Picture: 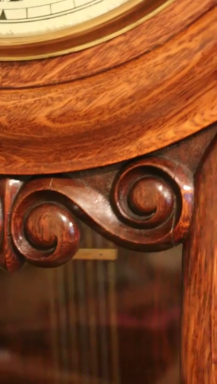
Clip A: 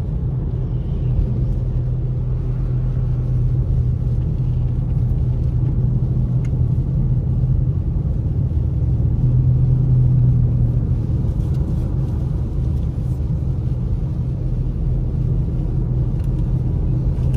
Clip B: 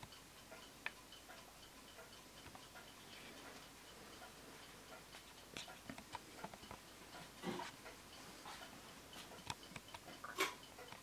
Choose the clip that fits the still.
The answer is B